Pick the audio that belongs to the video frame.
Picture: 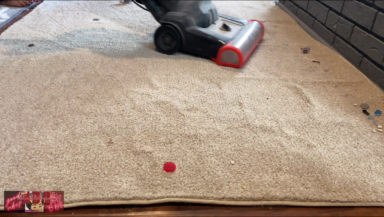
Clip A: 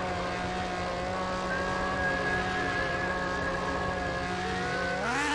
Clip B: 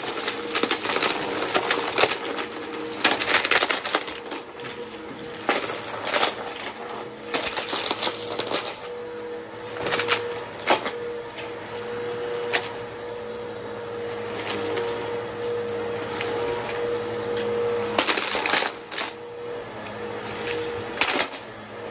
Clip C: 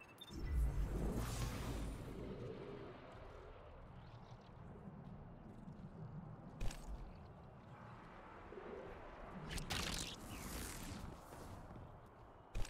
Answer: B